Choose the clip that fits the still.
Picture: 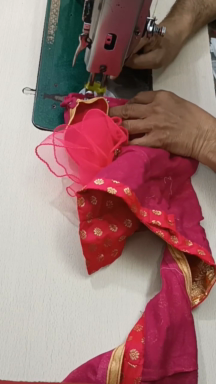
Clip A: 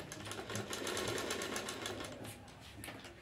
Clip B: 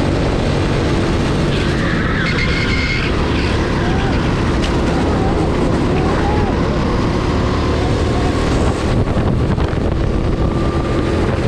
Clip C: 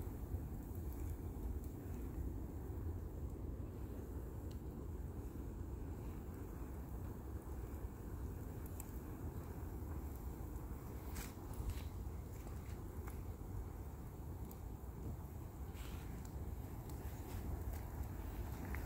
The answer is A